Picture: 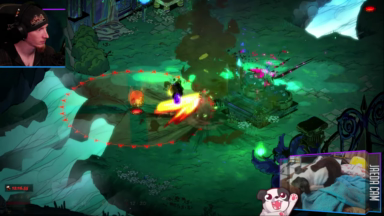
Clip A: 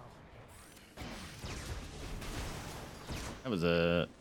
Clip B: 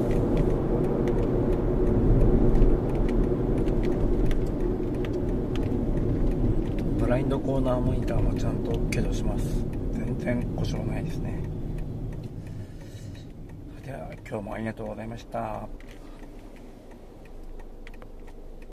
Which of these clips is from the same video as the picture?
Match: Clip A